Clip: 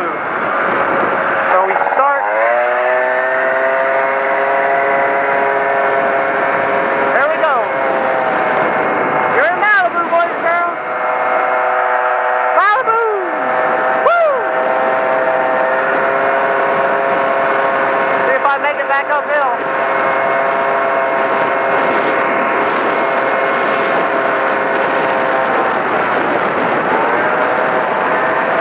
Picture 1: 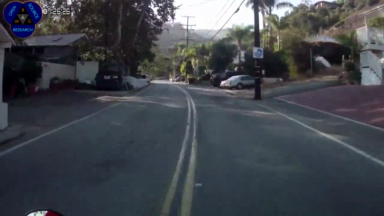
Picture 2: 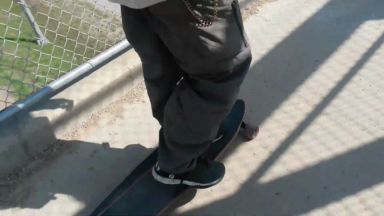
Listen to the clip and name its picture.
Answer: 1